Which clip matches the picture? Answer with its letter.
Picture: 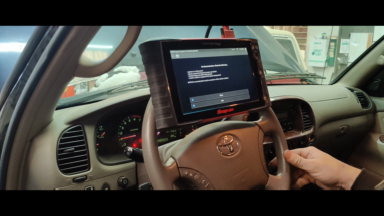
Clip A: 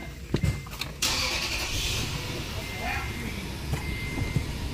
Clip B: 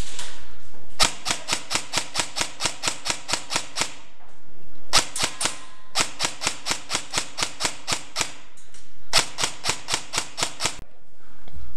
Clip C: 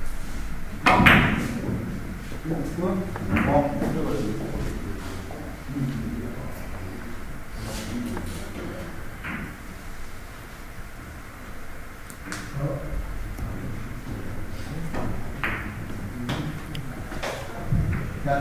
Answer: A